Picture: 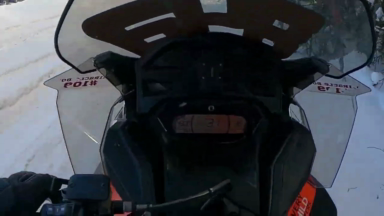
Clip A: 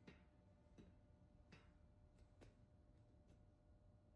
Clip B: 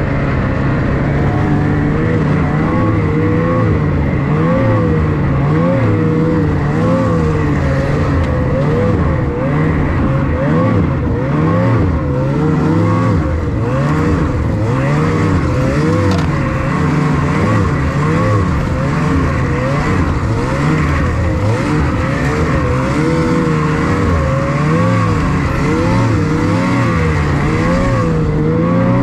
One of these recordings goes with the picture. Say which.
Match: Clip B